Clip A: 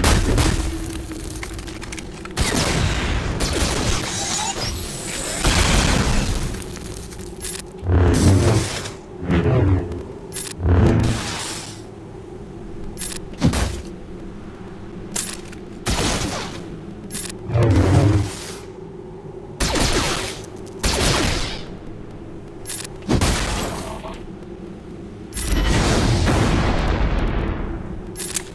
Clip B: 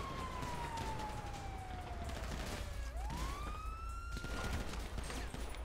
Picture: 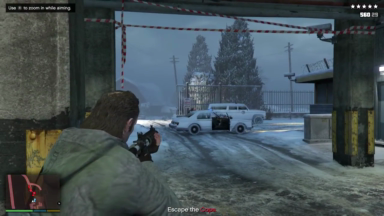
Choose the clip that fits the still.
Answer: B